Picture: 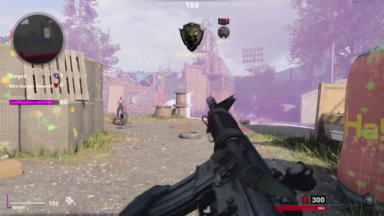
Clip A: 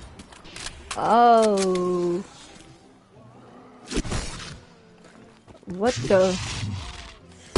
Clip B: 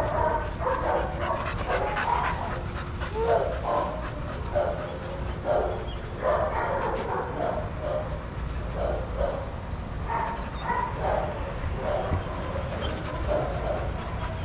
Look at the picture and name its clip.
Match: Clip A